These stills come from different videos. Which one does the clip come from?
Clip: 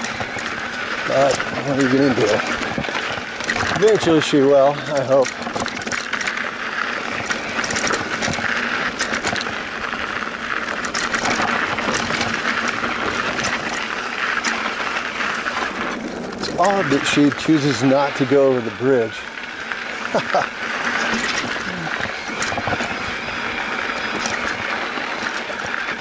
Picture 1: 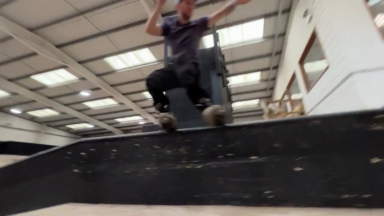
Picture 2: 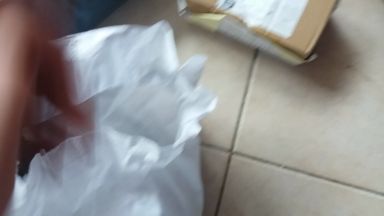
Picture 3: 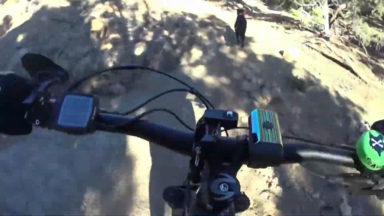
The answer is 3